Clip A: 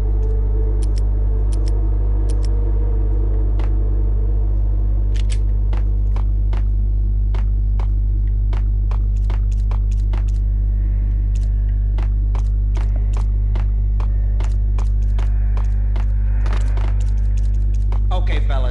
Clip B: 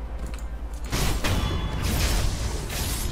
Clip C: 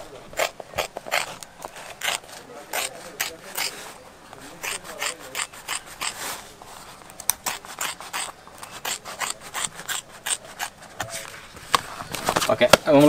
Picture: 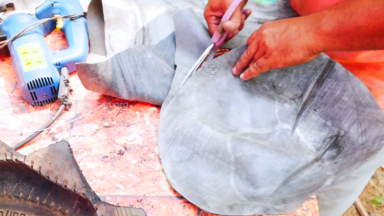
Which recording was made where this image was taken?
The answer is C